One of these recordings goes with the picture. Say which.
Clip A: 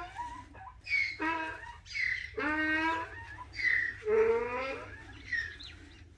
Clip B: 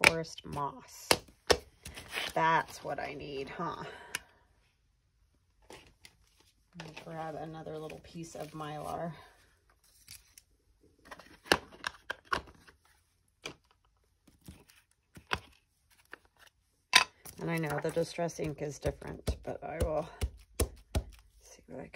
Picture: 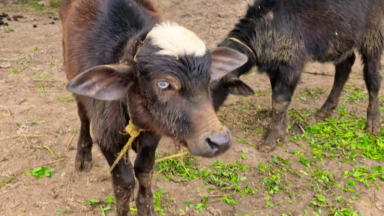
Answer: A